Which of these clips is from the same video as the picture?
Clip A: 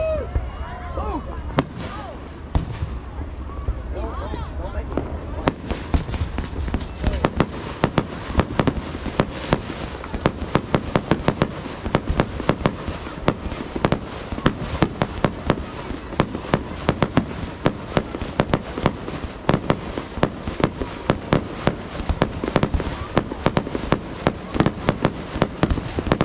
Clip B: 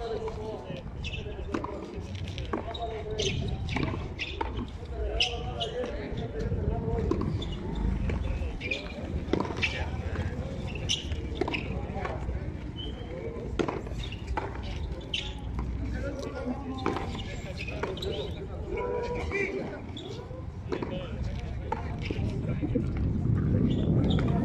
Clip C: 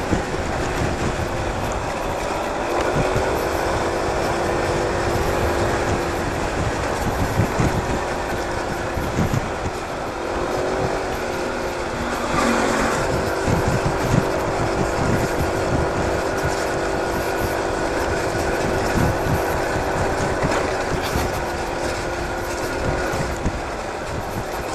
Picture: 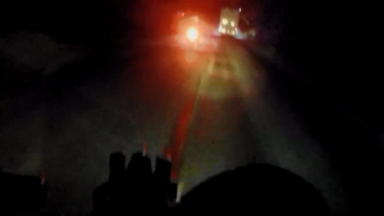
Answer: C